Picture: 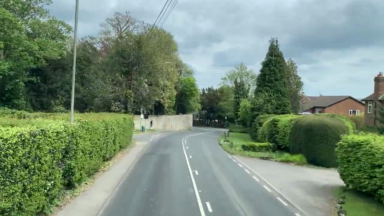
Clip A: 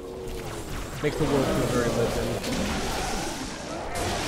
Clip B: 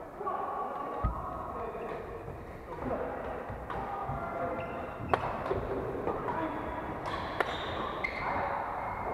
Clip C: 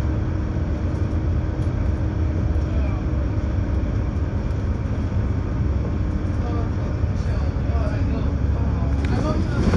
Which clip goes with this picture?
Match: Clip C